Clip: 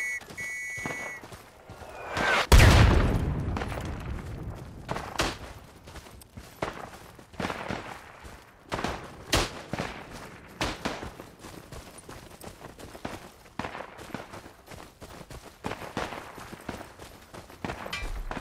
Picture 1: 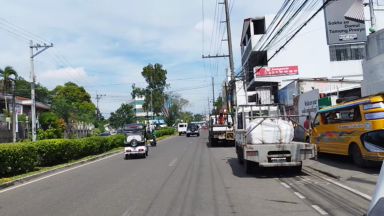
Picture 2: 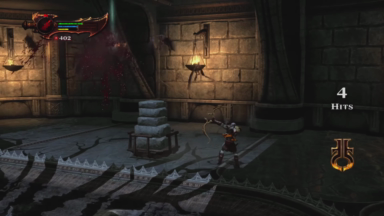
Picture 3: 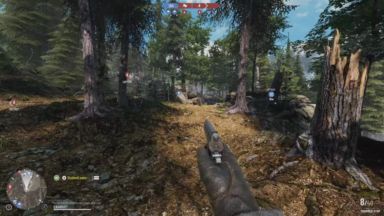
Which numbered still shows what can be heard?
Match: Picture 3